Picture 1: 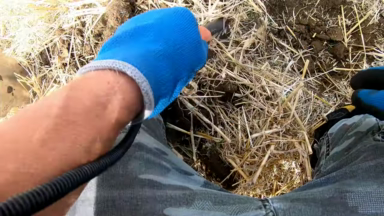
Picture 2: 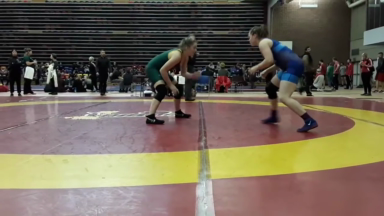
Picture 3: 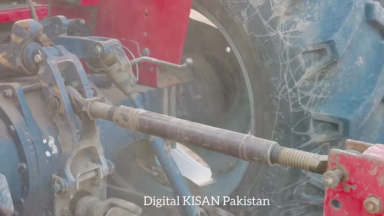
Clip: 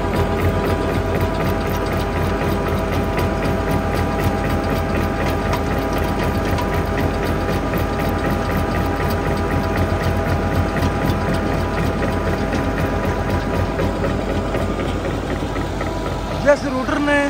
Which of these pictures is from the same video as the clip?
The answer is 3